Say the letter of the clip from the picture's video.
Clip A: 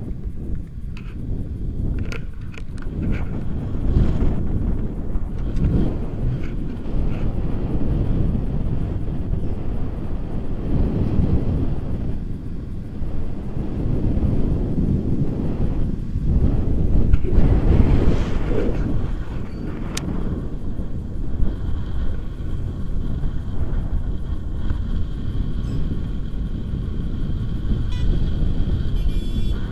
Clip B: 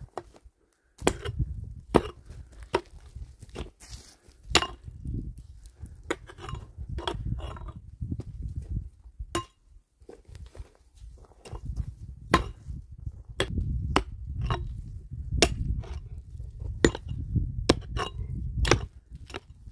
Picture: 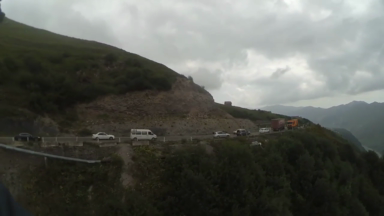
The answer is A